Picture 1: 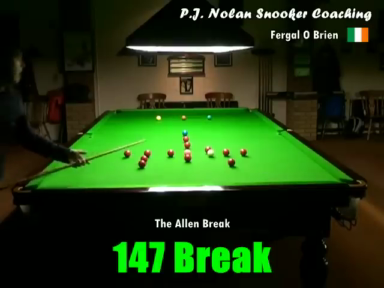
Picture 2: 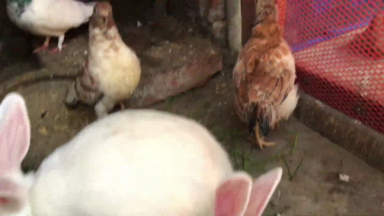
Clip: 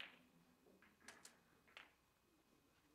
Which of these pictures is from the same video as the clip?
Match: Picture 1